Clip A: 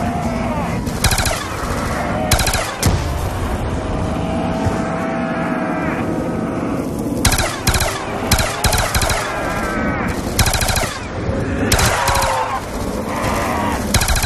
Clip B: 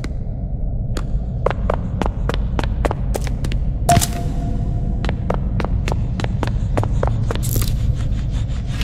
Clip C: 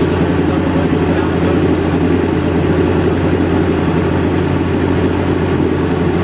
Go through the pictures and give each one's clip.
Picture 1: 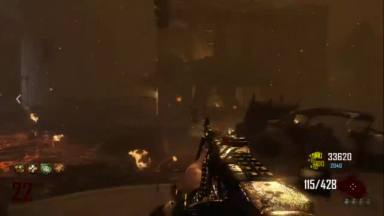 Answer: A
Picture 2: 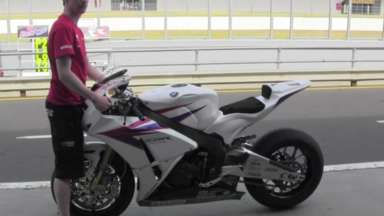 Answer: C